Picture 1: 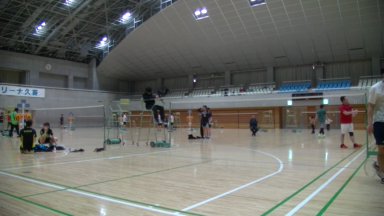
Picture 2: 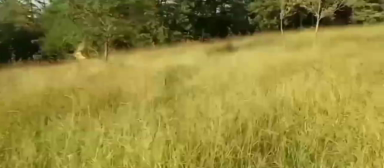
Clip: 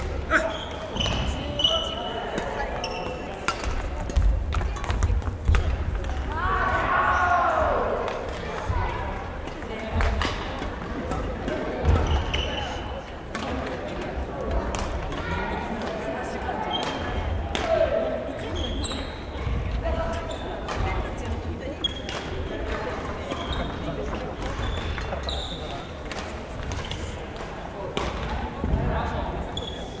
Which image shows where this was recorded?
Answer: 1